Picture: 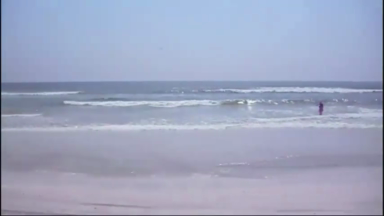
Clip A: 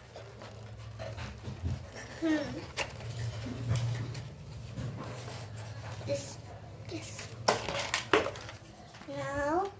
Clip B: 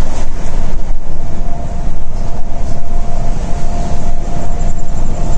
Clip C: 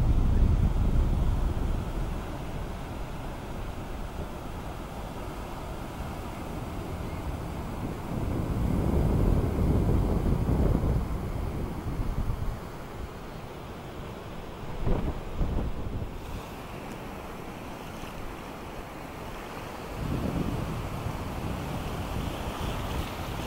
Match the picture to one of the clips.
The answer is C